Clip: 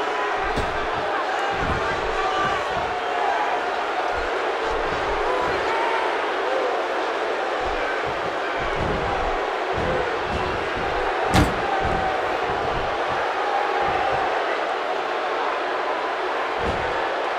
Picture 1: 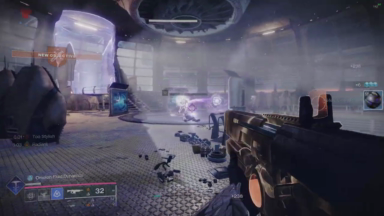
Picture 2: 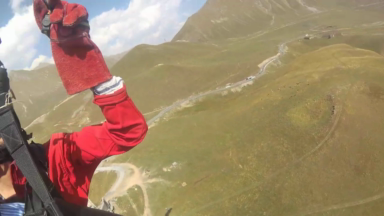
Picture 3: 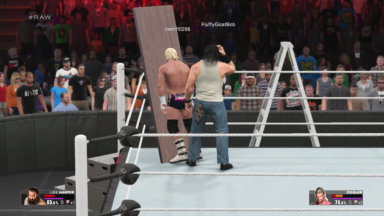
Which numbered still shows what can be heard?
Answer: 3